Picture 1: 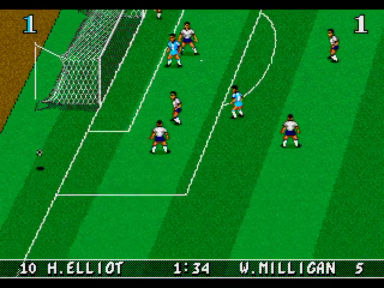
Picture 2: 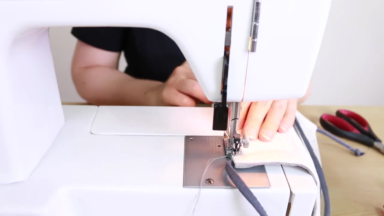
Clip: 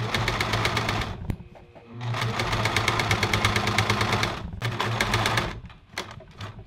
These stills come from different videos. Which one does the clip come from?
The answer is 2